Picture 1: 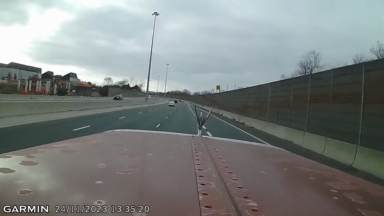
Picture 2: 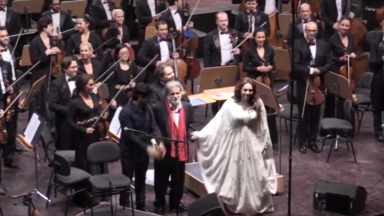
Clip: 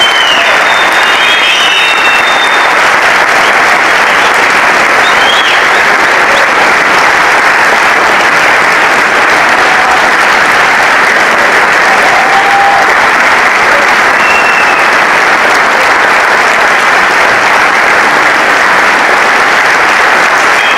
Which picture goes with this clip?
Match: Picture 2